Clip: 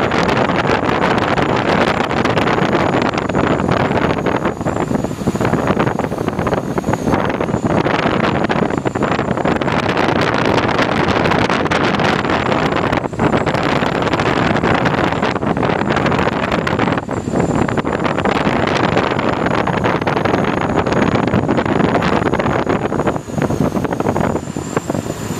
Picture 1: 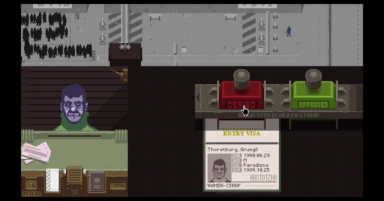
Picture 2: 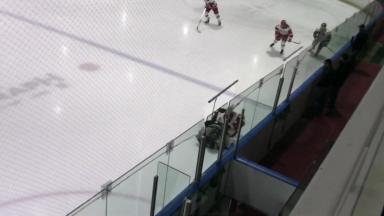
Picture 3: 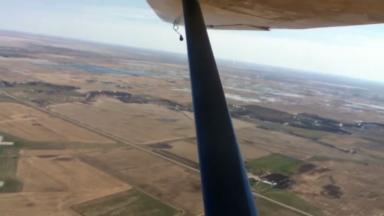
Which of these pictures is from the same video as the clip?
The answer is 3